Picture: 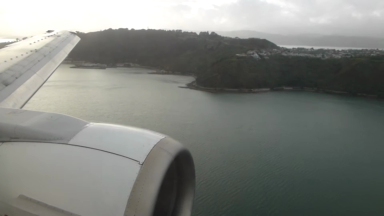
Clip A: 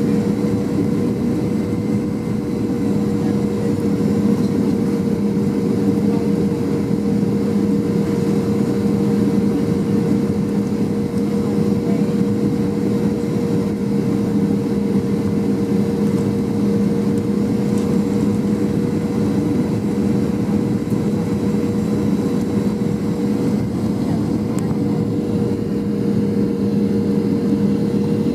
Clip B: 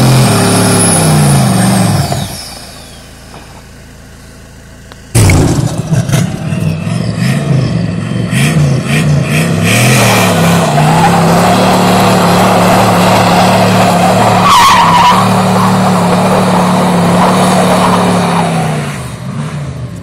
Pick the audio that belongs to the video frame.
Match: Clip A